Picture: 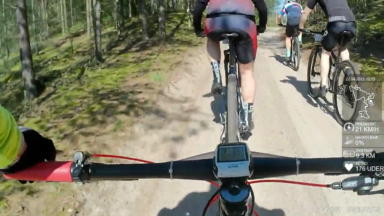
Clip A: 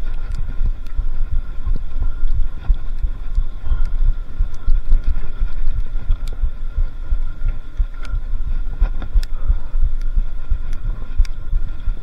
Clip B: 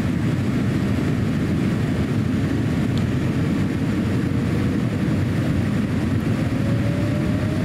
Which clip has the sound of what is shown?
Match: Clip A